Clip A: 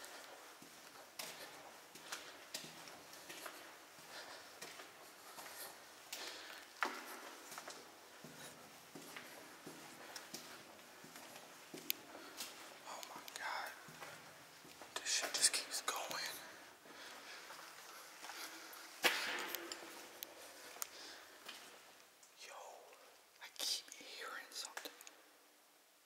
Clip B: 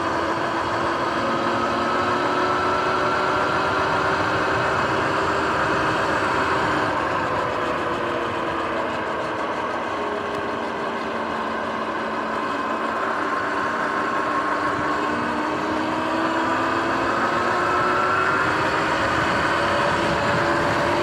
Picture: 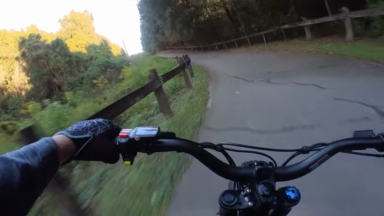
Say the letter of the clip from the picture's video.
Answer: B